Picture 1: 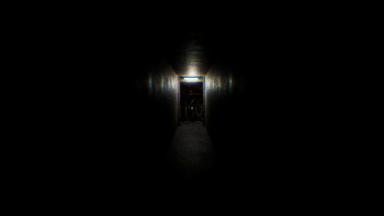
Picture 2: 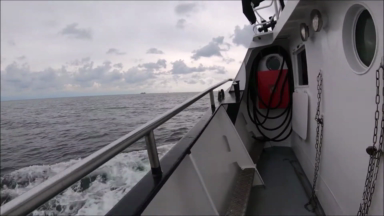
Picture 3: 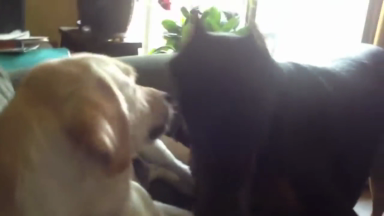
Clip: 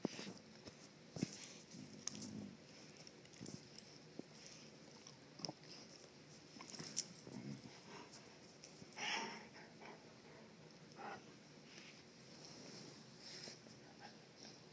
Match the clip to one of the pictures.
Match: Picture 3